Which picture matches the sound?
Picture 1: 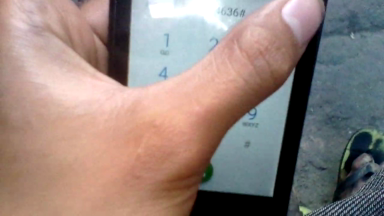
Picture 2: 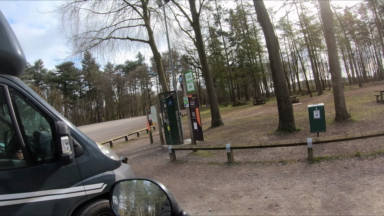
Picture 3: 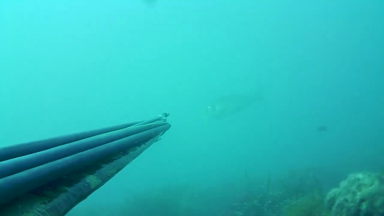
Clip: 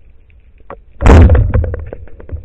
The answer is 3